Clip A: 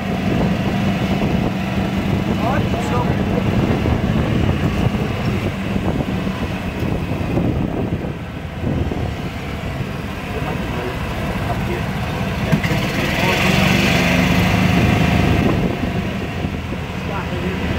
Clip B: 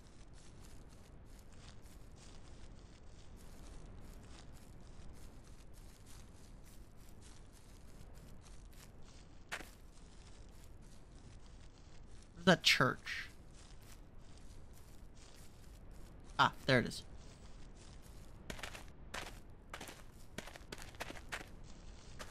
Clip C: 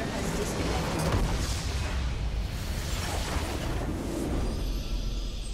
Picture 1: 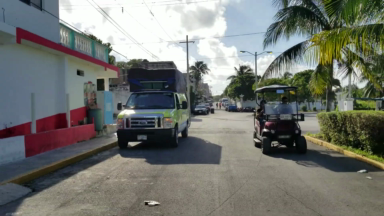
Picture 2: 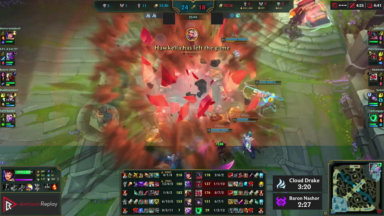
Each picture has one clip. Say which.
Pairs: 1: A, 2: C